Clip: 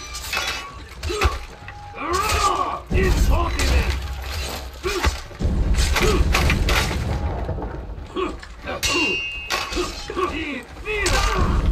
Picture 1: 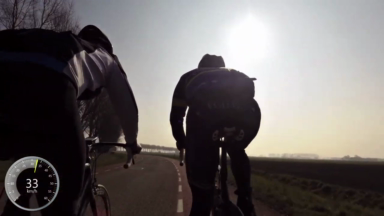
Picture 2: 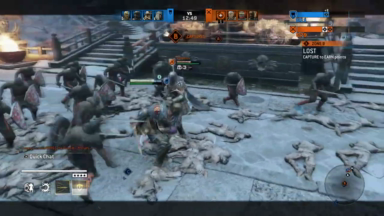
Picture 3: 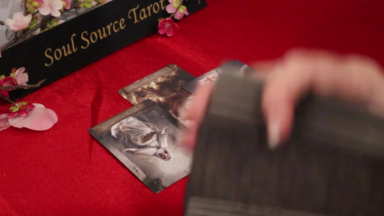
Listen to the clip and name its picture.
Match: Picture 2